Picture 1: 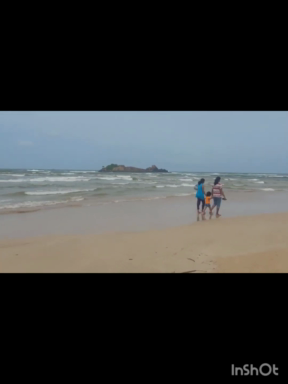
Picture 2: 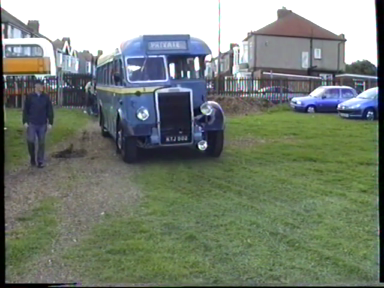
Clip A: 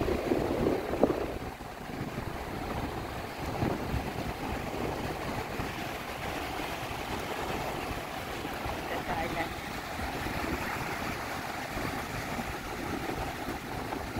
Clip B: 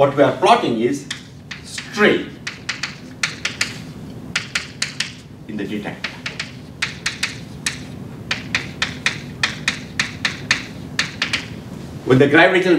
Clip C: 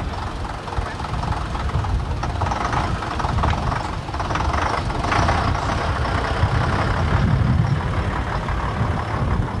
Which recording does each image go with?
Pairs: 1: A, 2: C